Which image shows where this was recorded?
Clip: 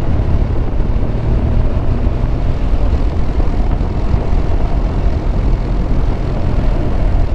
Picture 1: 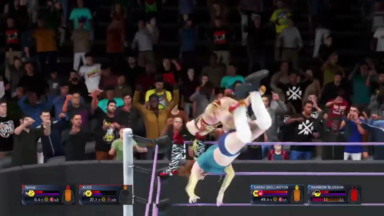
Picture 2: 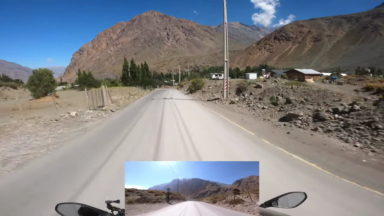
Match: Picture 2